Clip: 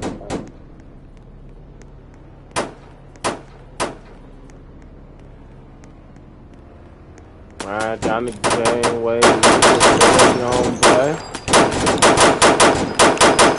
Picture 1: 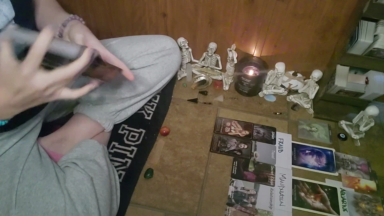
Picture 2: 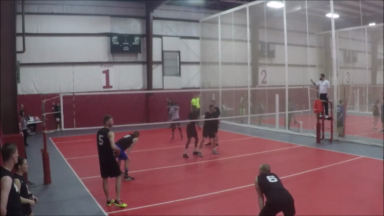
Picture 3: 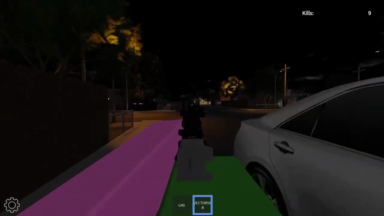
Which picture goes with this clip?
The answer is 3